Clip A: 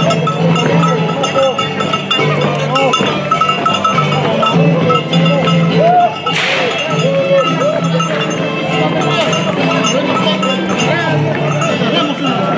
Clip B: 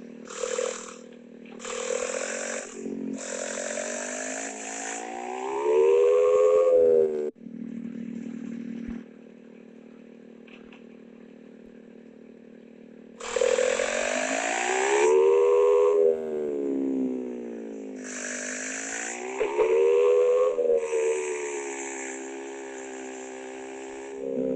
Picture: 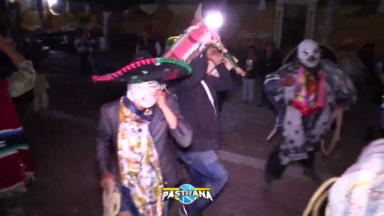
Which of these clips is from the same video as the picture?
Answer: A